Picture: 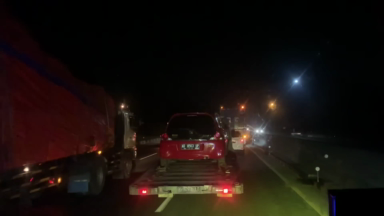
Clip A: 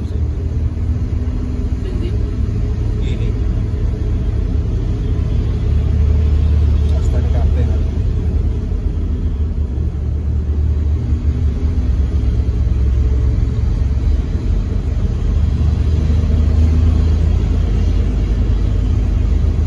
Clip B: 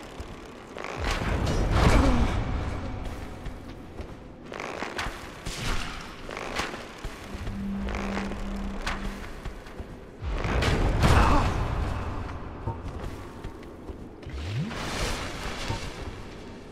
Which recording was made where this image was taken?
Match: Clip A